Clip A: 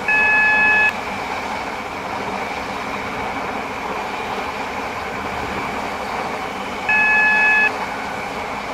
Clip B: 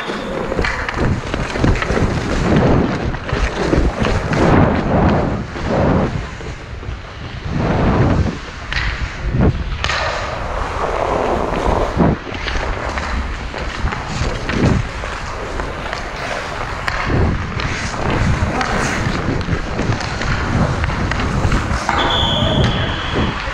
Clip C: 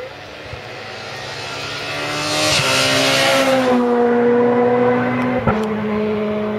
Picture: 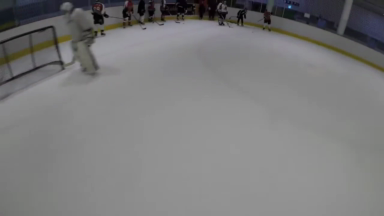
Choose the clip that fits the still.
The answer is B